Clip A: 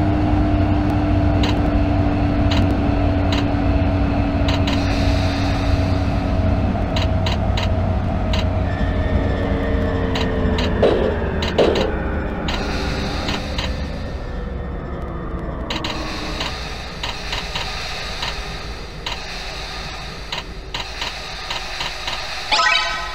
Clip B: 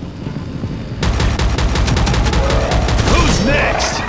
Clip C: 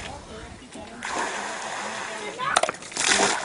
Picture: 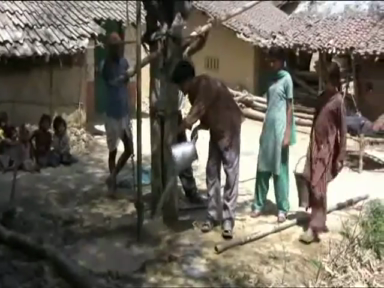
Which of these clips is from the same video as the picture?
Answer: C